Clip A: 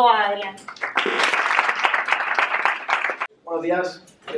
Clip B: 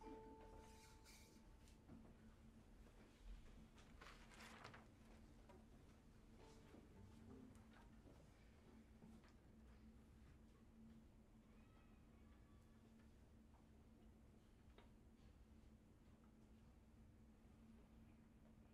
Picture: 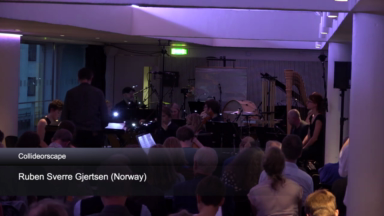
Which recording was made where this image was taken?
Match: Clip B